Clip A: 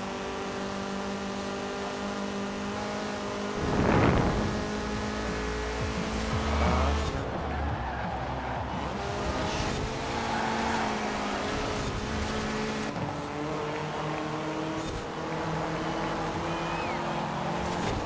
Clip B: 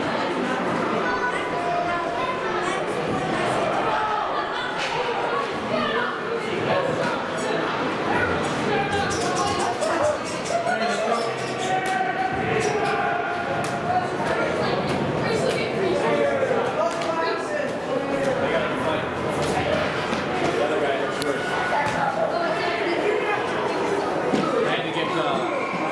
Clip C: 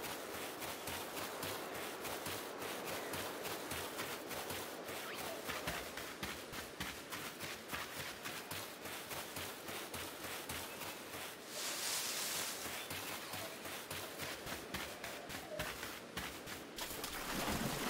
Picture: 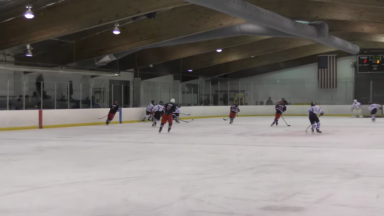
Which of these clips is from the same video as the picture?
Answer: B